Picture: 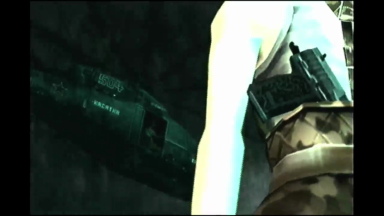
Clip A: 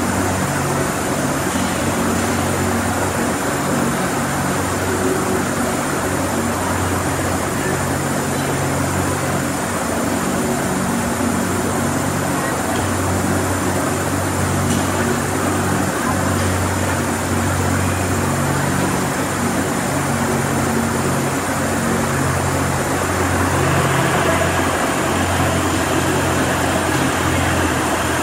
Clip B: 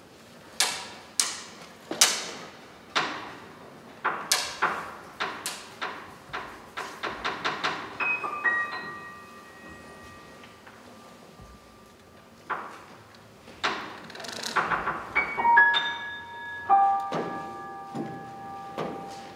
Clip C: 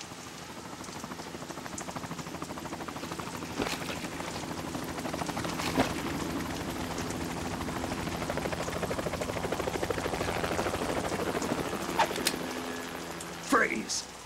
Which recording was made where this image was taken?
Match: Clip C